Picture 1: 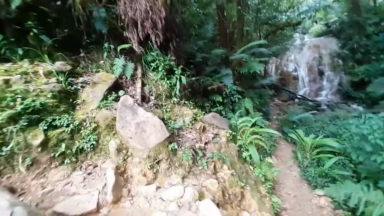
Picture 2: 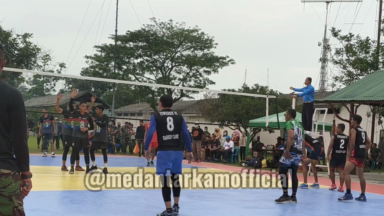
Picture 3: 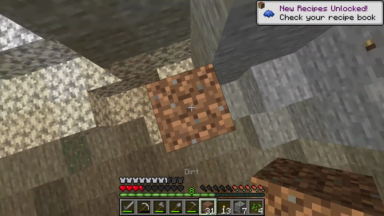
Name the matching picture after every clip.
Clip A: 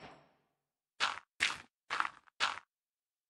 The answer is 3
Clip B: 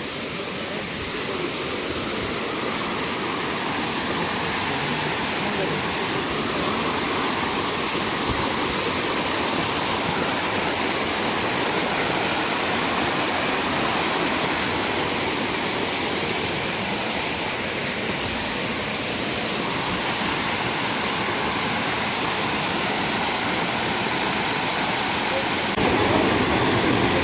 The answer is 1